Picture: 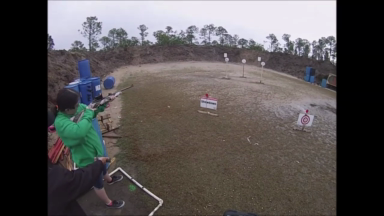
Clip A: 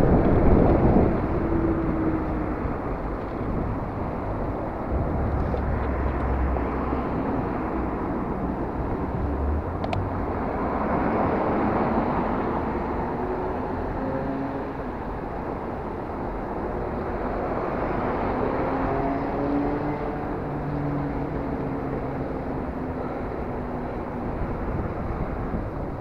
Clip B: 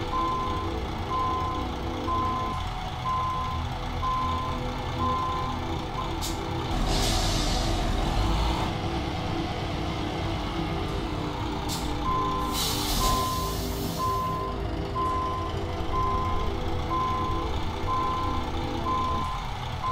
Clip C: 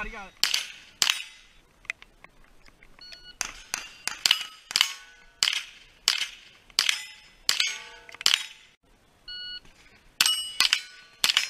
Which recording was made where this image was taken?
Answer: C